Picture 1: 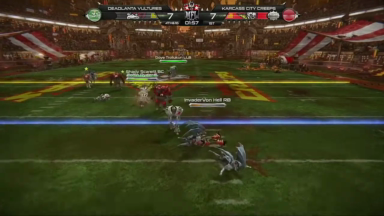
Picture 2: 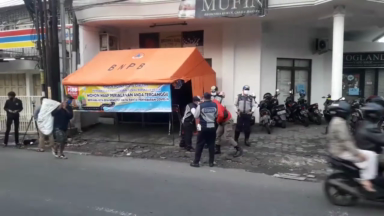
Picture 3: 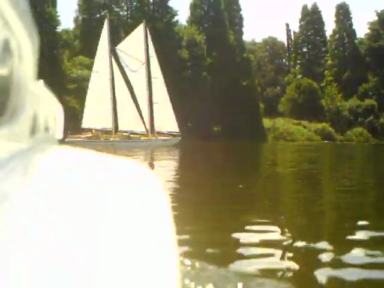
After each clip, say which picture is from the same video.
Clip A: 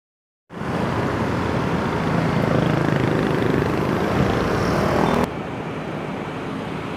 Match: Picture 2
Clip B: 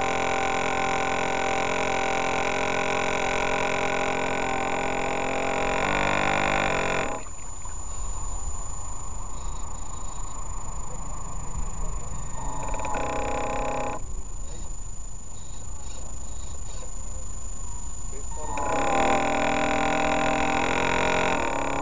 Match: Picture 3